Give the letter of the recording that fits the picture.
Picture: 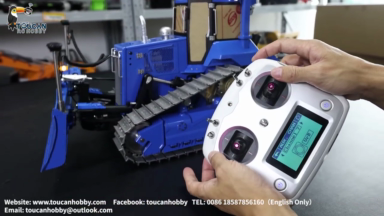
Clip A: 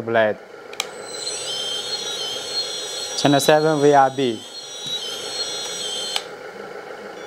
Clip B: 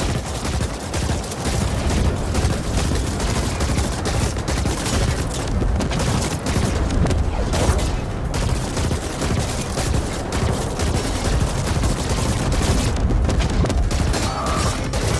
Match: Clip A